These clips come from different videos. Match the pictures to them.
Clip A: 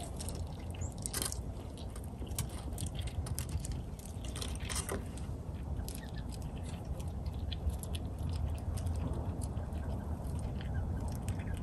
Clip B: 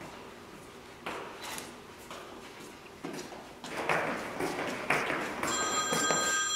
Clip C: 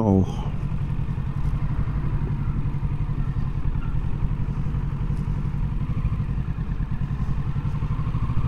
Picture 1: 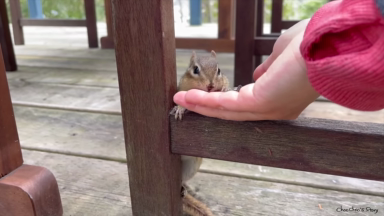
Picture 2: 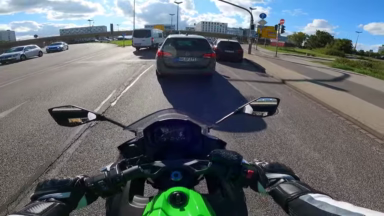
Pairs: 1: A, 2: C